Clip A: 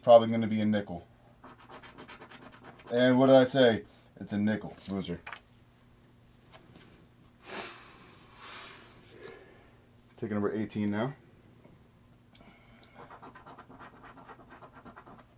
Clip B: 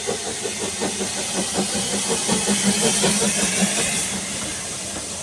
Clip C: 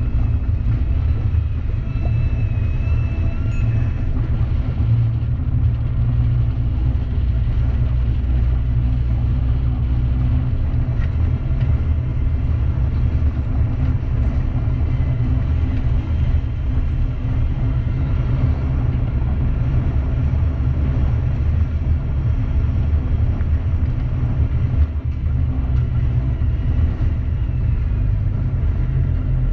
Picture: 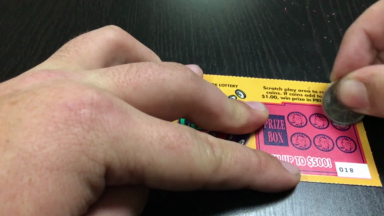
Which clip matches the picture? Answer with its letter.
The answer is A